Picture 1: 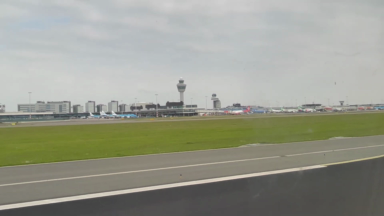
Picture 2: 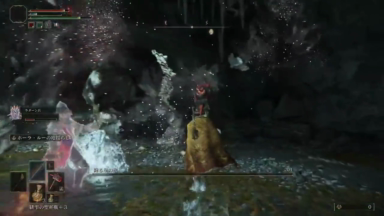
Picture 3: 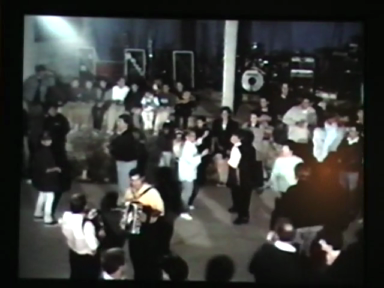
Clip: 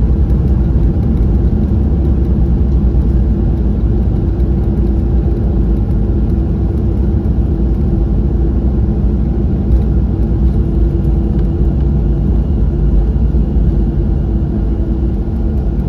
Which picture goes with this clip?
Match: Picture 1